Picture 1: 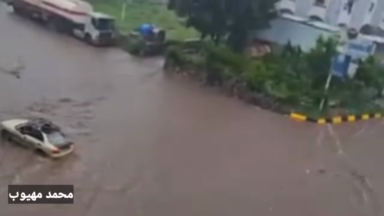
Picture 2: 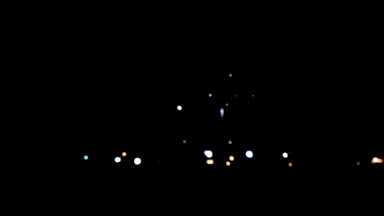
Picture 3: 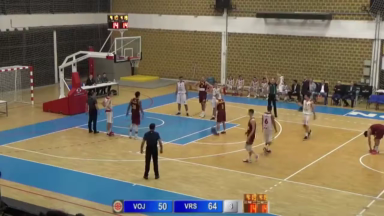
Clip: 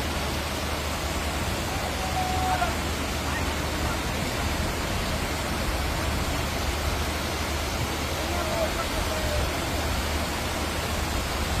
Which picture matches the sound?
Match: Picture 1